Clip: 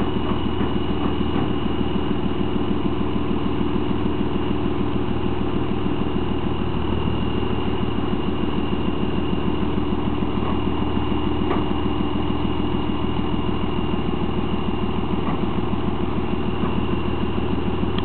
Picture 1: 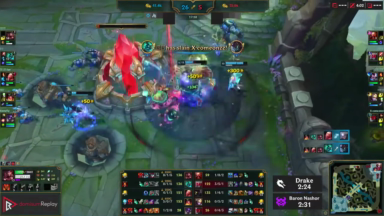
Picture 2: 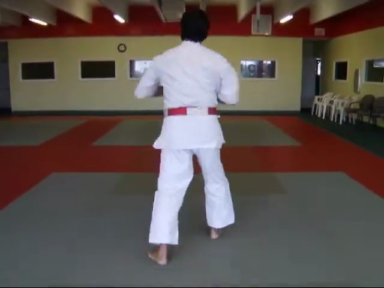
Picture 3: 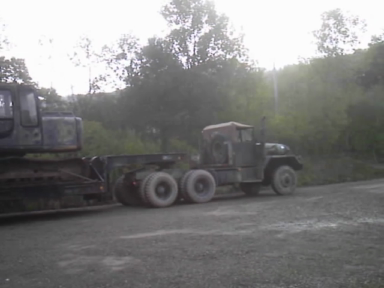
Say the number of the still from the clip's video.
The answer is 3